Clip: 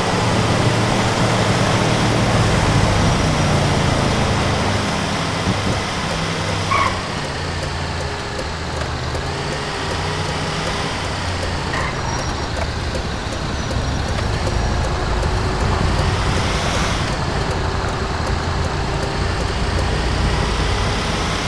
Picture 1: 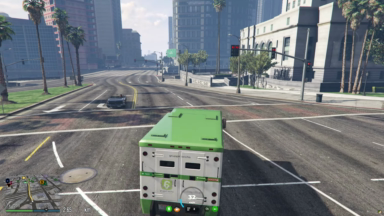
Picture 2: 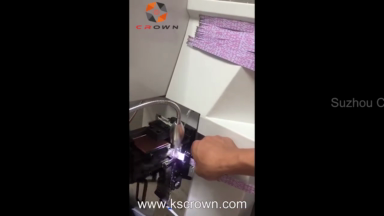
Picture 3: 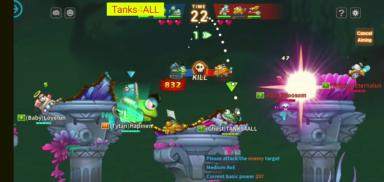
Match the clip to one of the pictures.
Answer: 1